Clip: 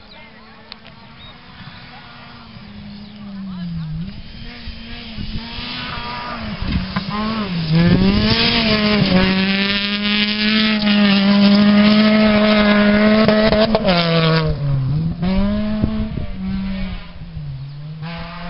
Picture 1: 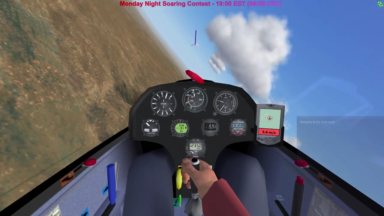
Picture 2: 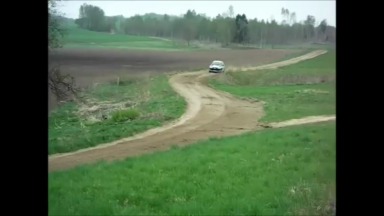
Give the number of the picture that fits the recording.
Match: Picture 2